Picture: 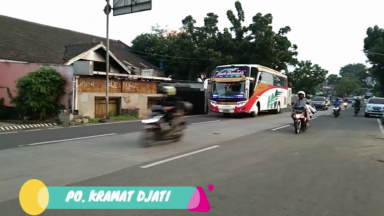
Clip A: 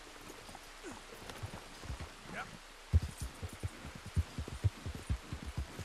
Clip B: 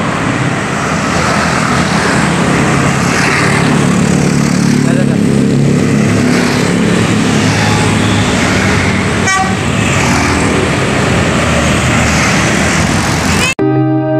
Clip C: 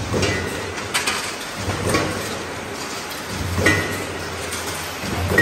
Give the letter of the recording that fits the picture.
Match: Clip B